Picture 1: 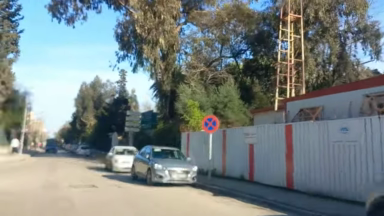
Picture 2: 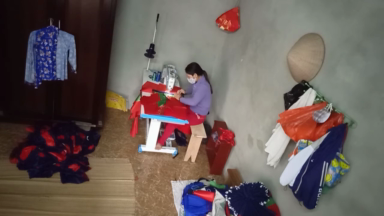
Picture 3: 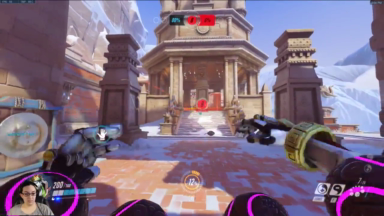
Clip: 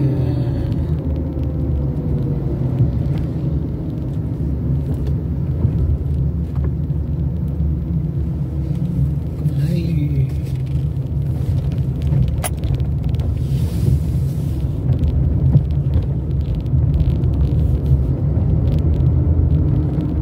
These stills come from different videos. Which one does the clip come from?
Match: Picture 1